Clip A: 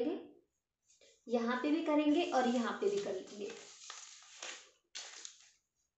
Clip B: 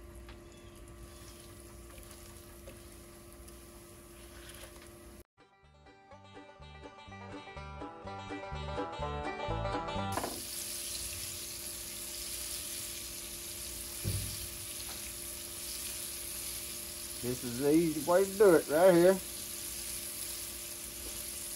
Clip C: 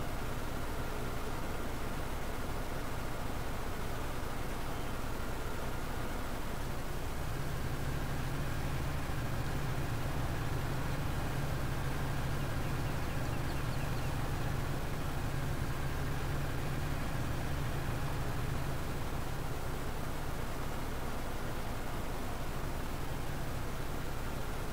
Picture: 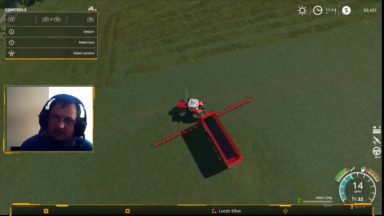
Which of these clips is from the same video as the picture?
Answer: C